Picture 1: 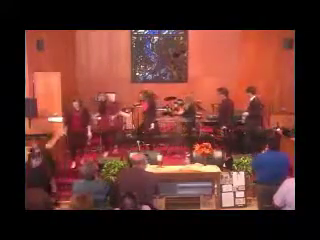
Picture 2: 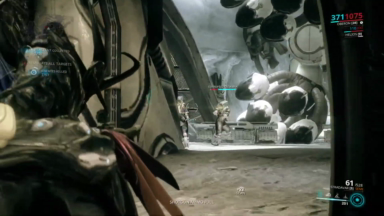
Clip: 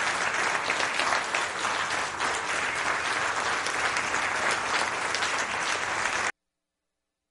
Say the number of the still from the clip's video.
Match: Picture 1